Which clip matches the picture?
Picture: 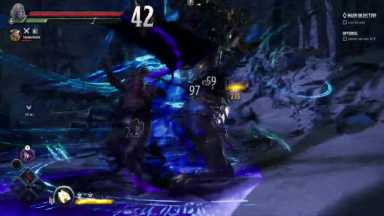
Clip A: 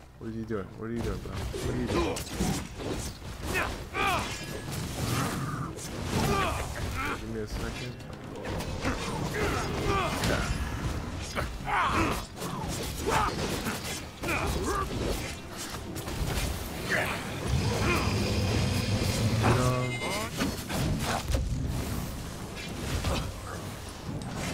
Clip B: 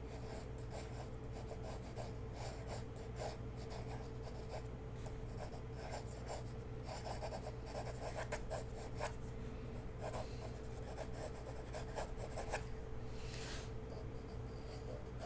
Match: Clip A